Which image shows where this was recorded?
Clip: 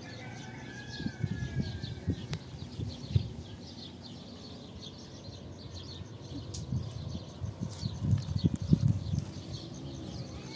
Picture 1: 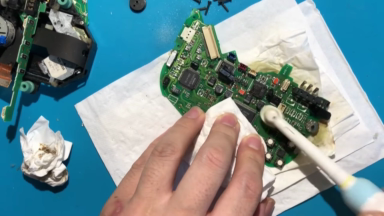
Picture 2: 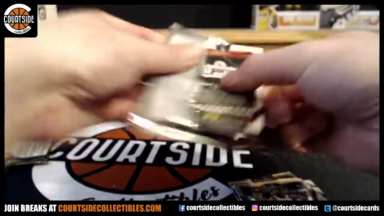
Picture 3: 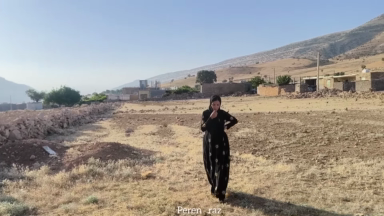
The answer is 3